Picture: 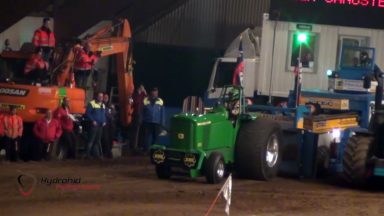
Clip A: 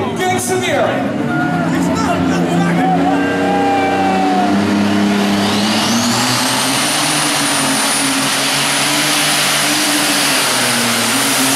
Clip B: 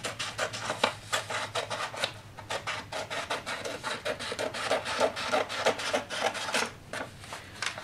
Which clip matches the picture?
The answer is A